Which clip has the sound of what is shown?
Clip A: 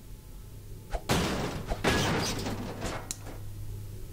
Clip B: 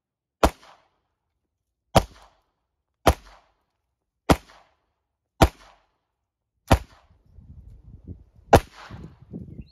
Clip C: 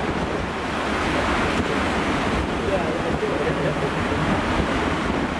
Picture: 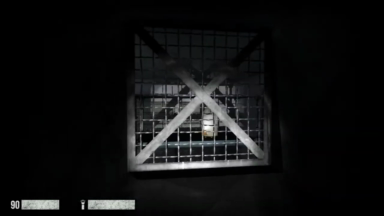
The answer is A